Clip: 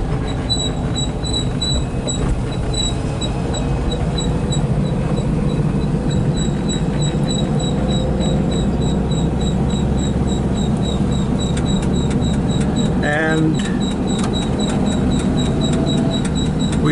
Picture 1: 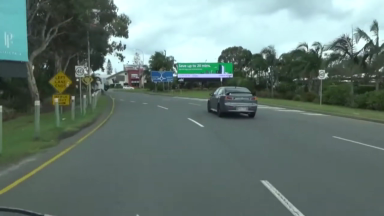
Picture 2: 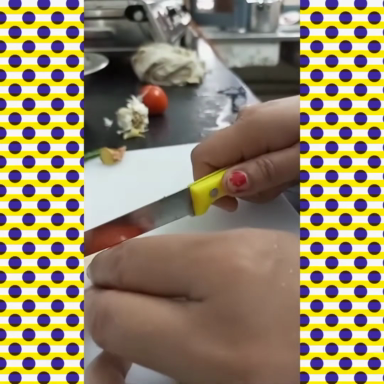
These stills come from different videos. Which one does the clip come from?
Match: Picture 1